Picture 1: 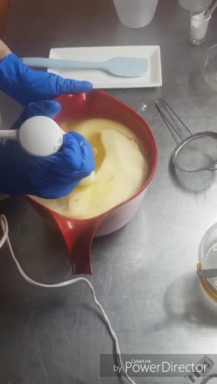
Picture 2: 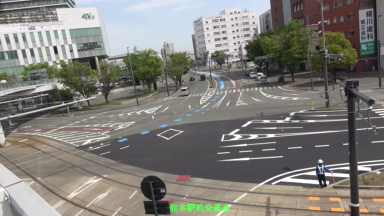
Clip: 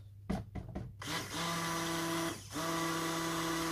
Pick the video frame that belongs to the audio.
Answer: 1